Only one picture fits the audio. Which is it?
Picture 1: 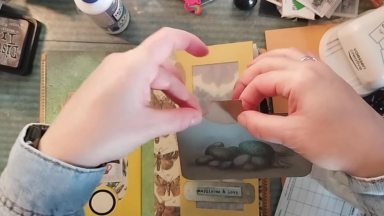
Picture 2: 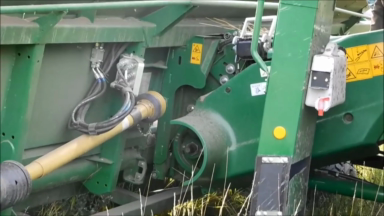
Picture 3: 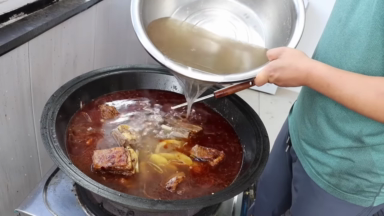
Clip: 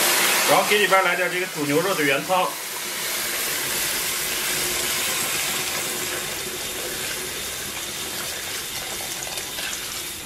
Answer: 3